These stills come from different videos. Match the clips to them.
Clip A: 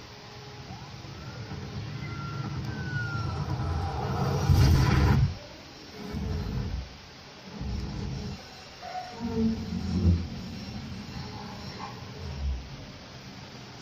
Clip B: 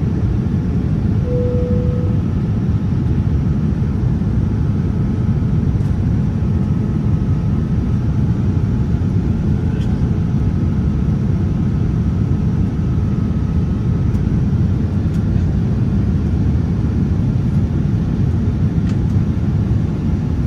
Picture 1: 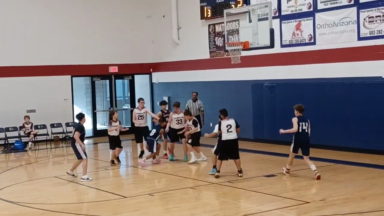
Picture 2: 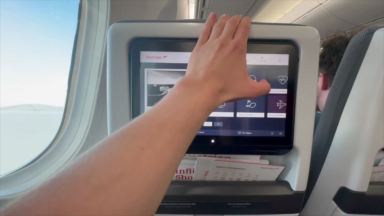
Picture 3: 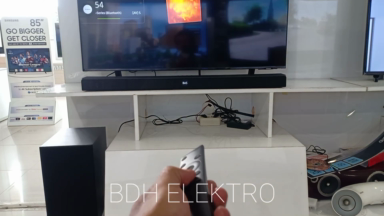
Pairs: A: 3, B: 2